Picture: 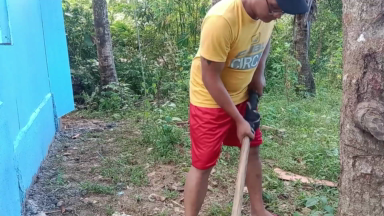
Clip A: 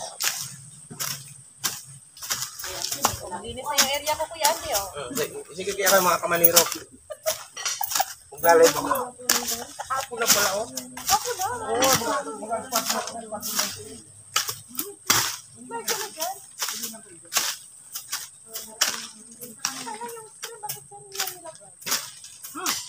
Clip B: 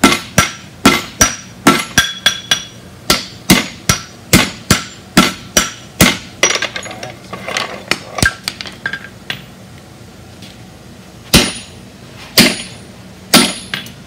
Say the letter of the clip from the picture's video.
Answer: A